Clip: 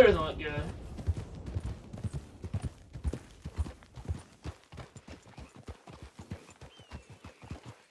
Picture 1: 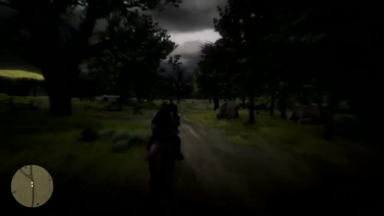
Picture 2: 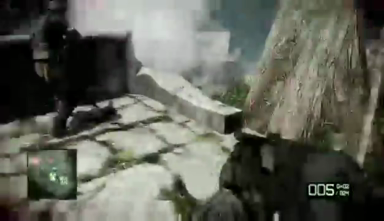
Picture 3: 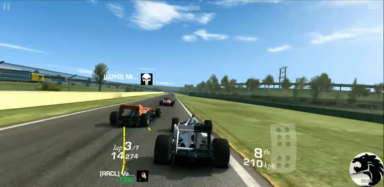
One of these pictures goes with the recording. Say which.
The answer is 1